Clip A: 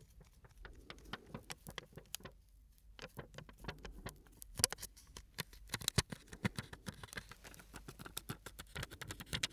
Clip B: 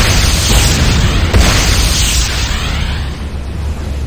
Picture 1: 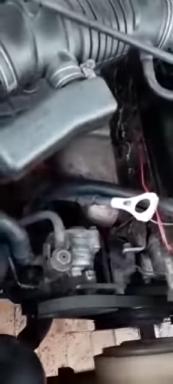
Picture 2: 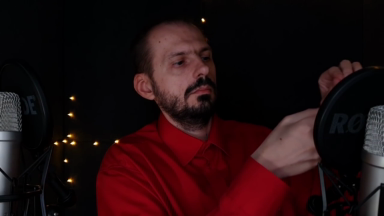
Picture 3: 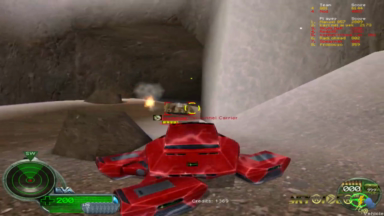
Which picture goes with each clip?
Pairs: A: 2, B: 3